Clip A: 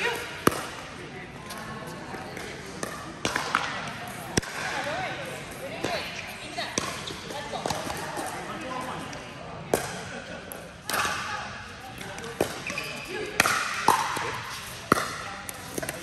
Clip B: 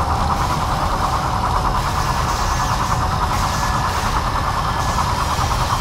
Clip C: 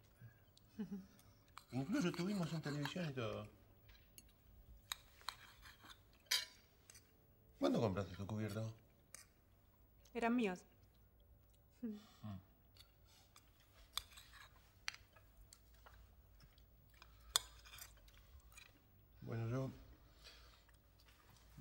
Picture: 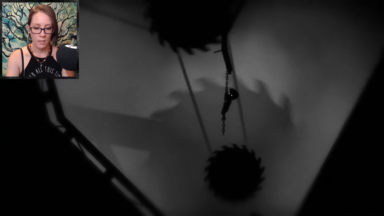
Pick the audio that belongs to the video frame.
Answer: B